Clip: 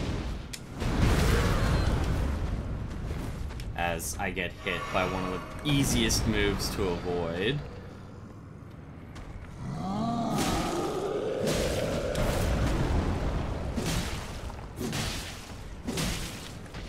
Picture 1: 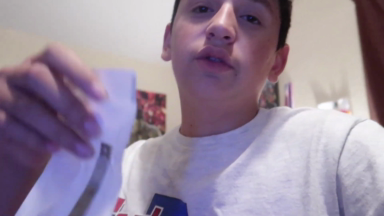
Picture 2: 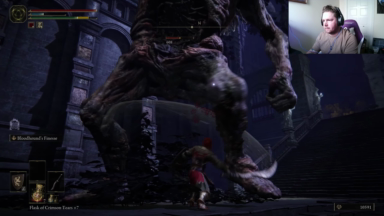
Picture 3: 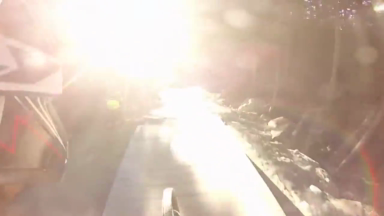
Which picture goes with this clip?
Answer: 2